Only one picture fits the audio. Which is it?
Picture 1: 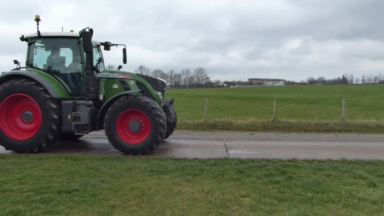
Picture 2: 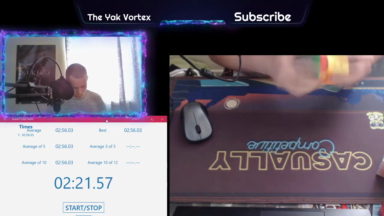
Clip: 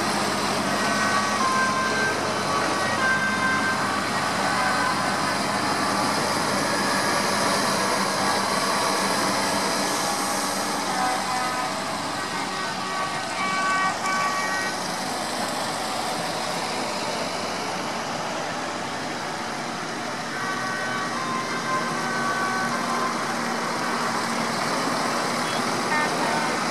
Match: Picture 1